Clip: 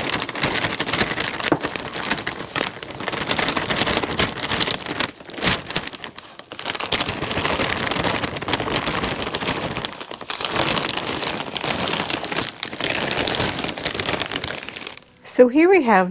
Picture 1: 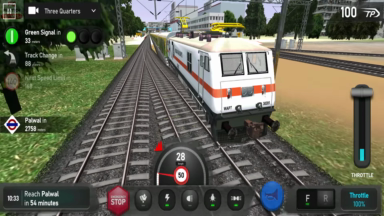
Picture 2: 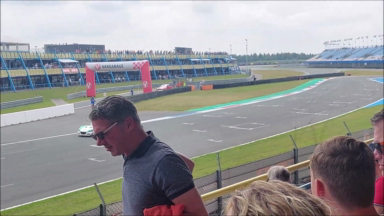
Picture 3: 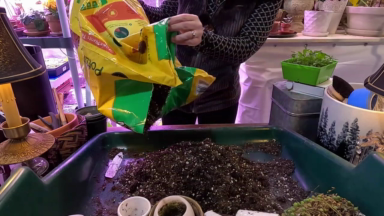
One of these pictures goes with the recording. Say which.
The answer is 3